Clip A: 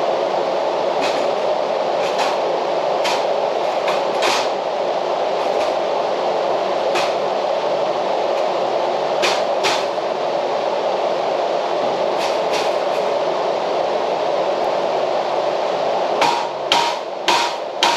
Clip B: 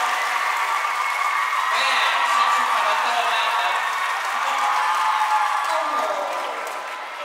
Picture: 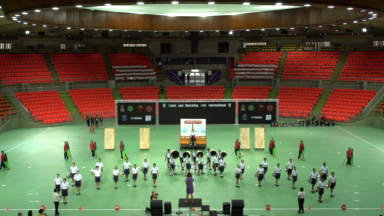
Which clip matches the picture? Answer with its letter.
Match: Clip B